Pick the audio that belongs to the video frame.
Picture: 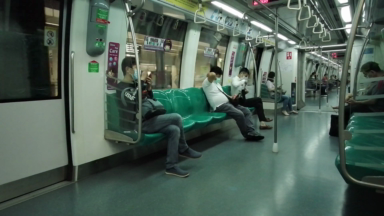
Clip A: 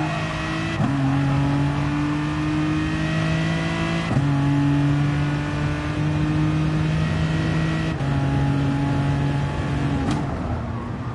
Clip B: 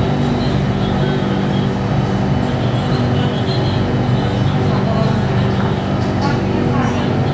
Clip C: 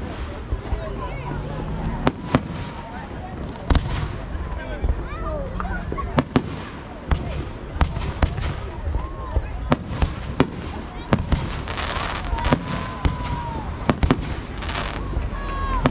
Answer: B